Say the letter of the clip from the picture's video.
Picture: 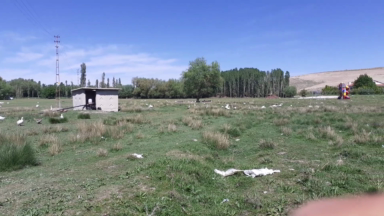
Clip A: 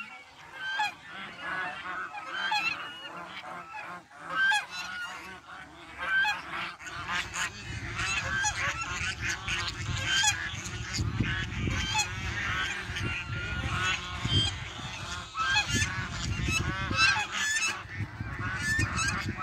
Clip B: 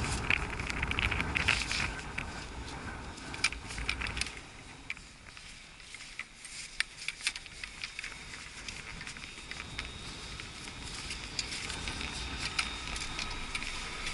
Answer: A